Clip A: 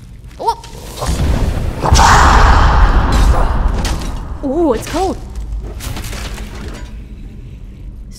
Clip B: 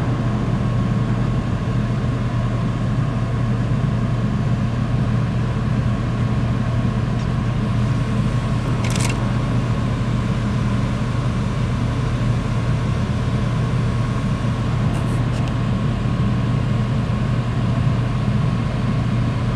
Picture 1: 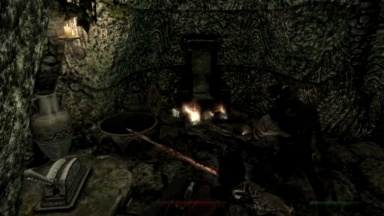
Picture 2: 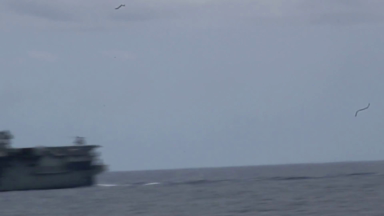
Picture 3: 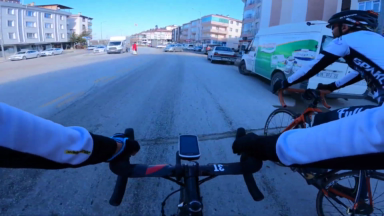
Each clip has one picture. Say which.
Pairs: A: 1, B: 2